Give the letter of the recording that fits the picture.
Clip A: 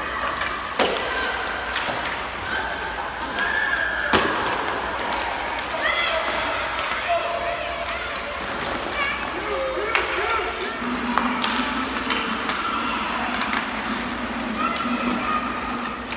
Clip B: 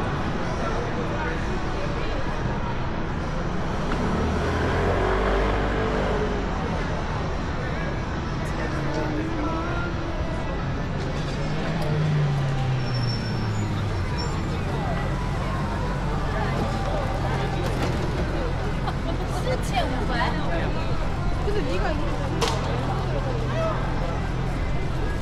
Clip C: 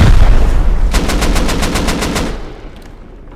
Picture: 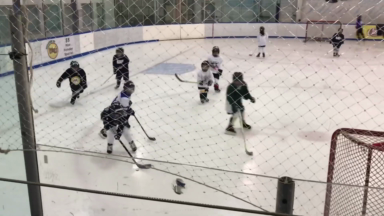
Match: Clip A